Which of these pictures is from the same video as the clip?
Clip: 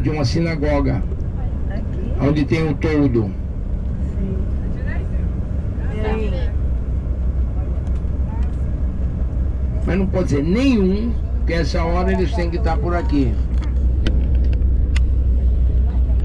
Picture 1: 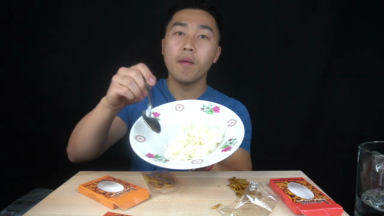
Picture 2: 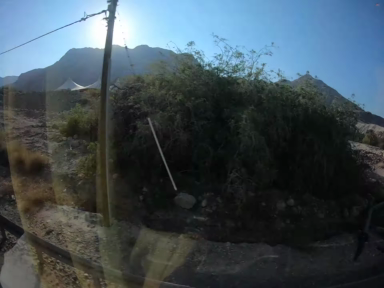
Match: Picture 2